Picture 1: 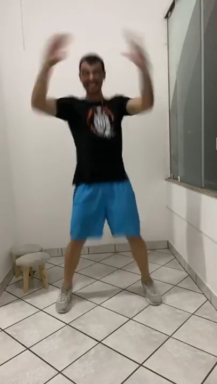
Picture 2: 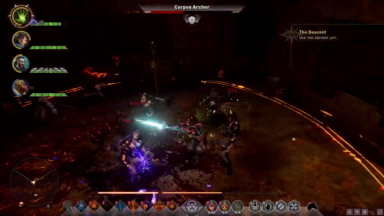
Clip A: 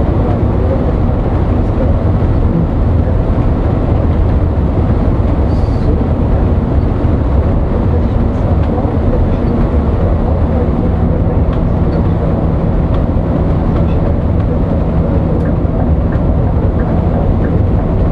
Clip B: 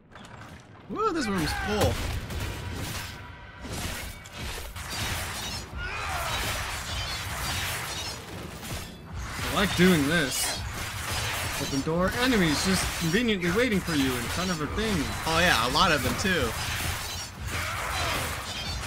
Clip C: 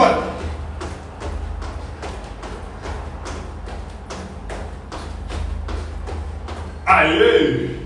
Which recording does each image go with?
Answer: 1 C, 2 B